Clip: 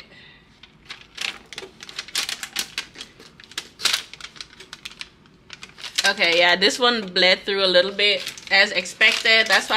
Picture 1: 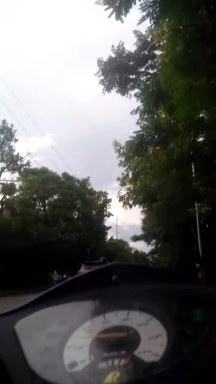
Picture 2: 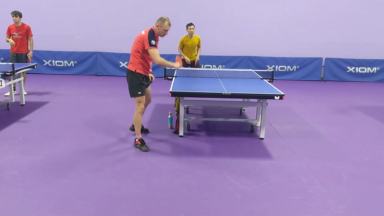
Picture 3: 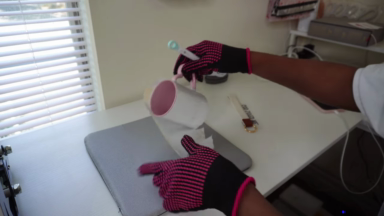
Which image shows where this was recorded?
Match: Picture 3